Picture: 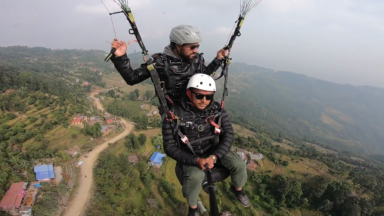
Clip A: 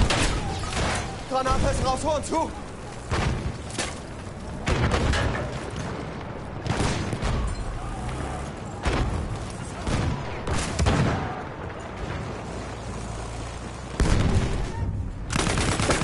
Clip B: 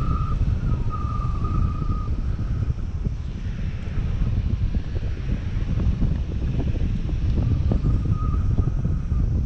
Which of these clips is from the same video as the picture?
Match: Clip B